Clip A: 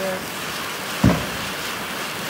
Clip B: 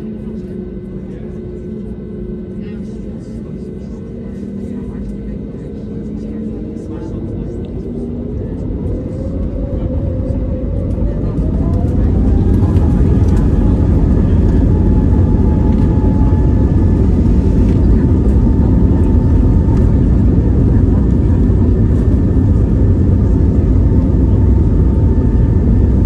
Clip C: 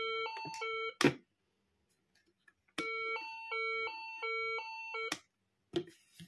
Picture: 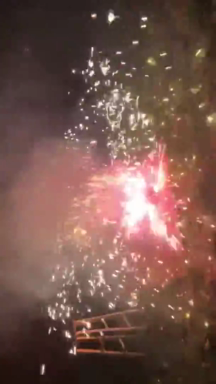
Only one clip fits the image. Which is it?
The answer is A